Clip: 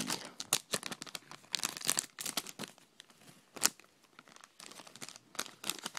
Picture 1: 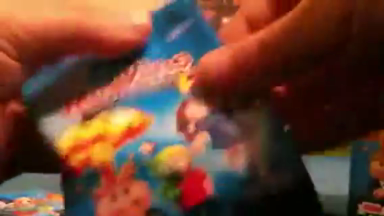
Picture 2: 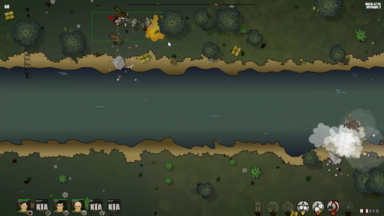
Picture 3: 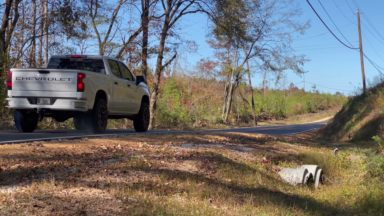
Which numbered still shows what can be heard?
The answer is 1